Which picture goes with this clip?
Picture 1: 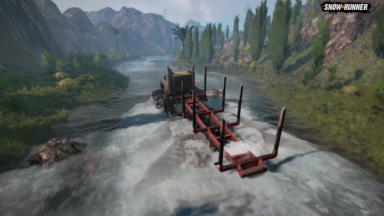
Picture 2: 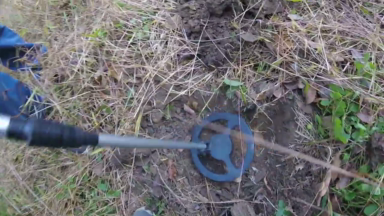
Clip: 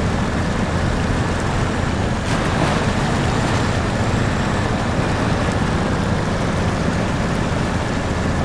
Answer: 1